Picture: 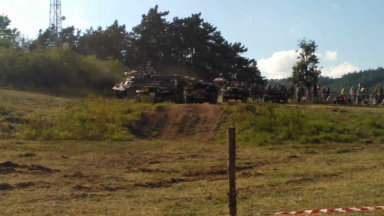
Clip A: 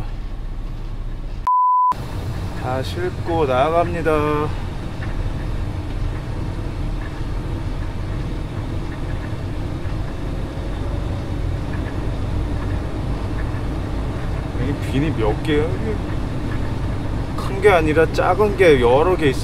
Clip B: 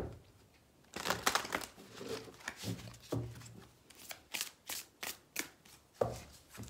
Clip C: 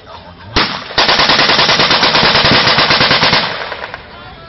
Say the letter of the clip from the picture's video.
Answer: C